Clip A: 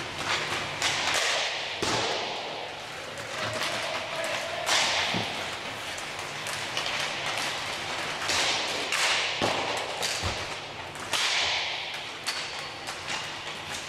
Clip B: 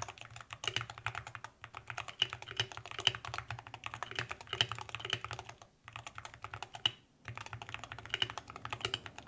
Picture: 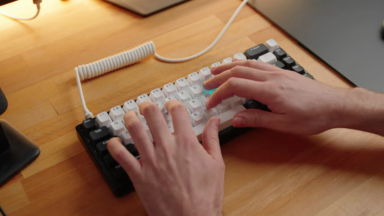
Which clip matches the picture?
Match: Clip B